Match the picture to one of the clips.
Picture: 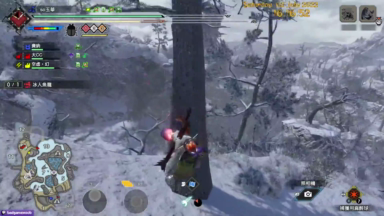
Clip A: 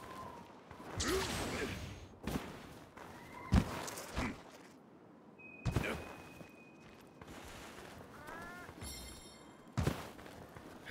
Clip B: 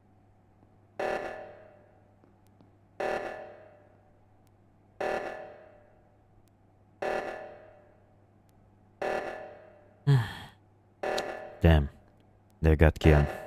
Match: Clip A